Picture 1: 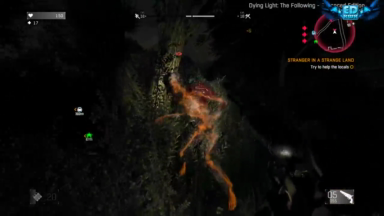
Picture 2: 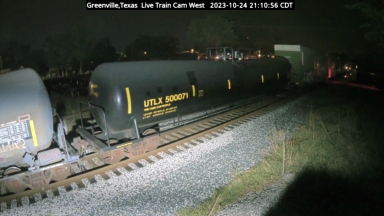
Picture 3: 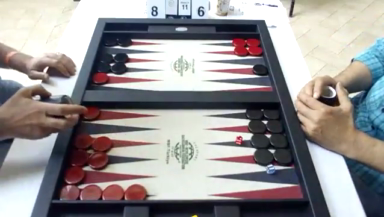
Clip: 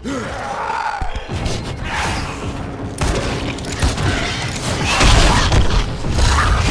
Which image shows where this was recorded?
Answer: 1